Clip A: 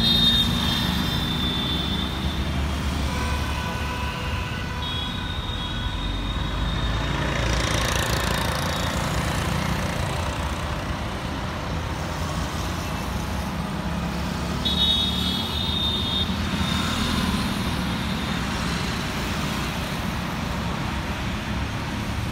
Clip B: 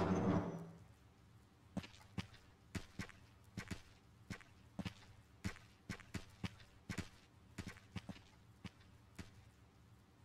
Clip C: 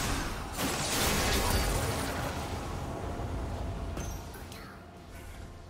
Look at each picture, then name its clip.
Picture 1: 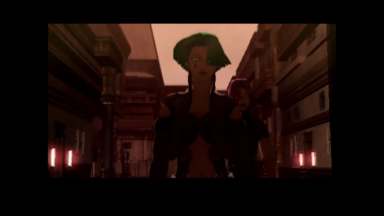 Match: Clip B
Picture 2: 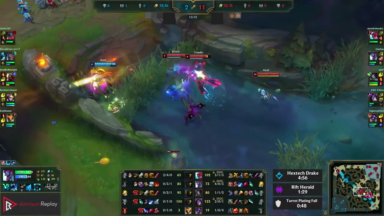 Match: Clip C